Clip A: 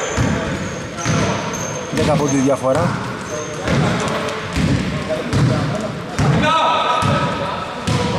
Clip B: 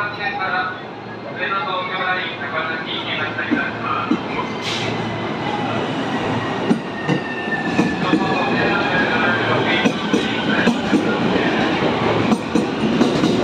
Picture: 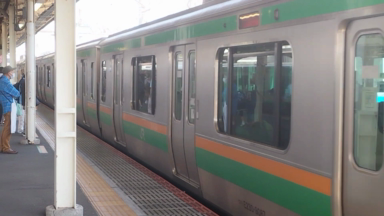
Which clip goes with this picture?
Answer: B